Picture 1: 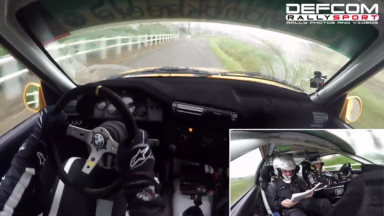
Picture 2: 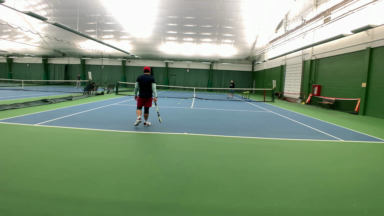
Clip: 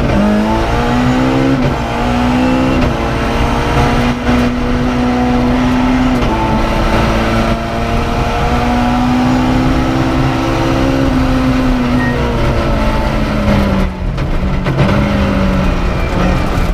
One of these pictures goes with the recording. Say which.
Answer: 1